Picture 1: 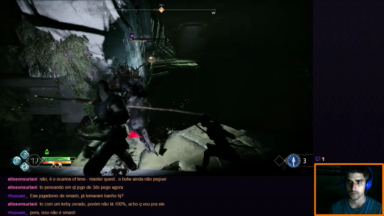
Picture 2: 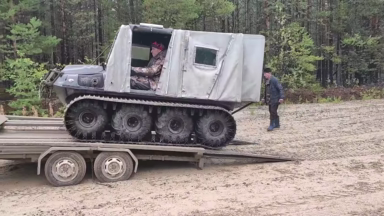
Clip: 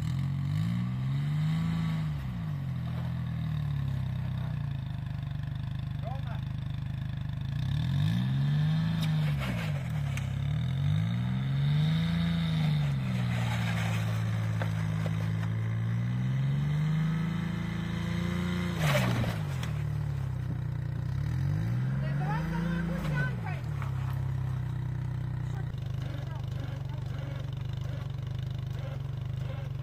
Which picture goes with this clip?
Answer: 2